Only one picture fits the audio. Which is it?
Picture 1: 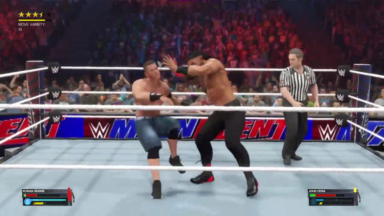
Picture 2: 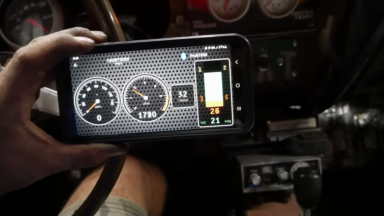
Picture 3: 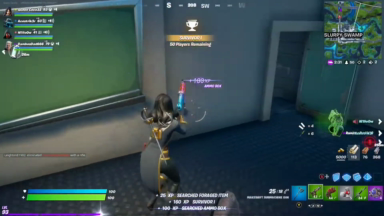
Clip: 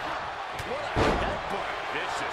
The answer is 1